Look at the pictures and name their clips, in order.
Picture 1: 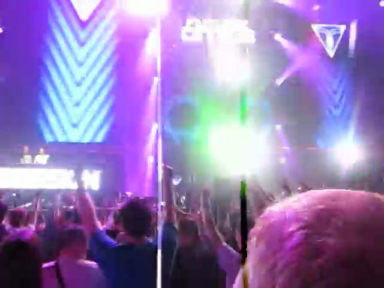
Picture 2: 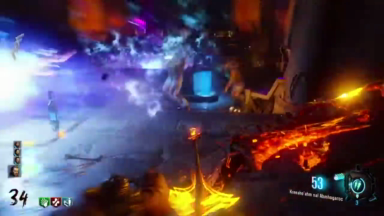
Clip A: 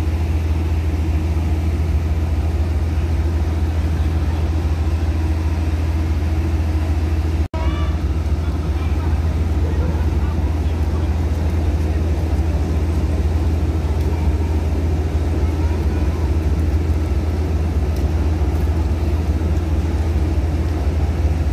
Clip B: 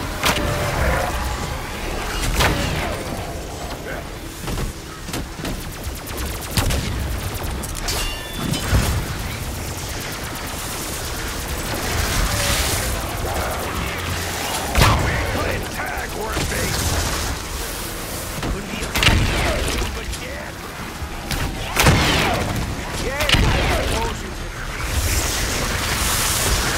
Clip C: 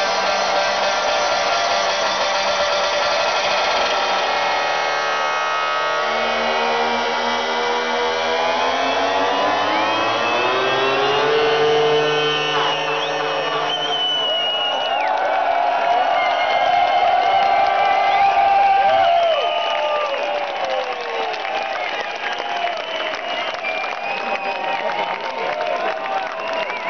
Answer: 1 C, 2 B